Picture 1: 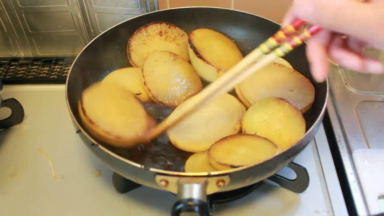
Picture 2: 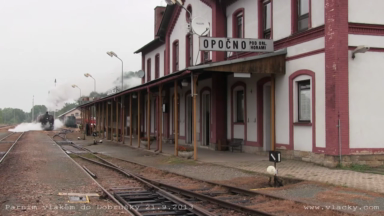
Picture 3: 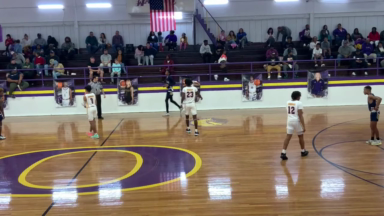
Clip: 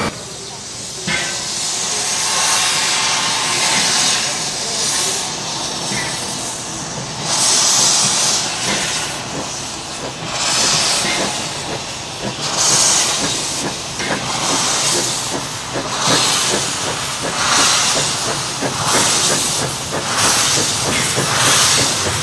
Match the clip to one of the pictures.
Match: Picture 2